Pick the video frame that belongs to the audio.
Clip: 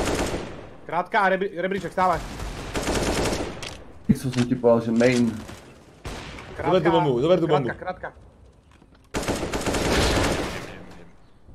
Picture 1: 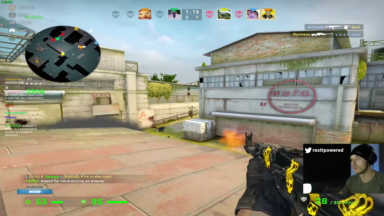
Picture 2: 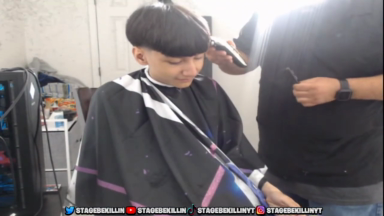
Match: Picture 1